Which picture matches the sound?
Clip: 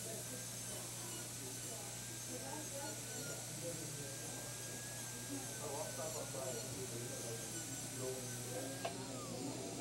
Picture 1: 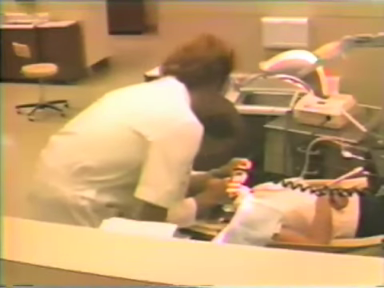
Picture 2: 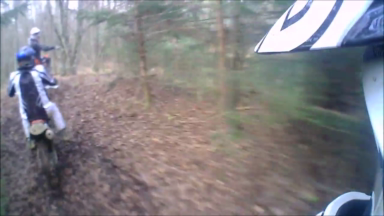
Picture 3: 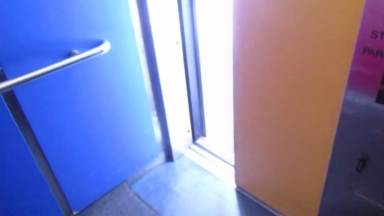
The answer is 1